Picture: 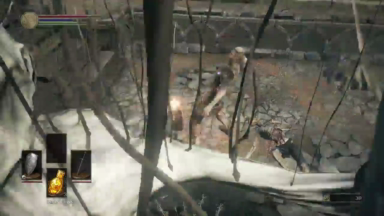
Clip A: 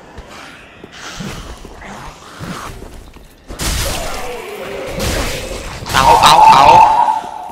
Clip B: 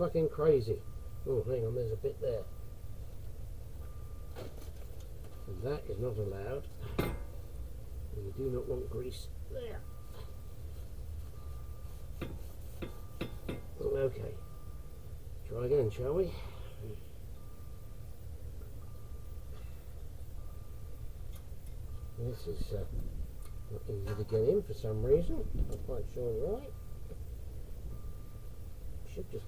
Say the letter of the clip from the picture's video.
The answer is A